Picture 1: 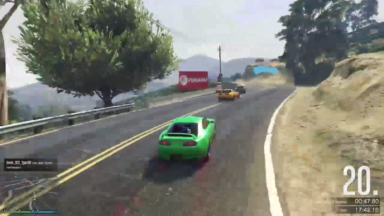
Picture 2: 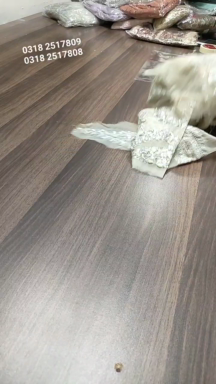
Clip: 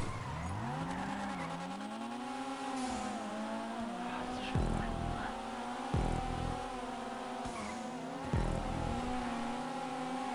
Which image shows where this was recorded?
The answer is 1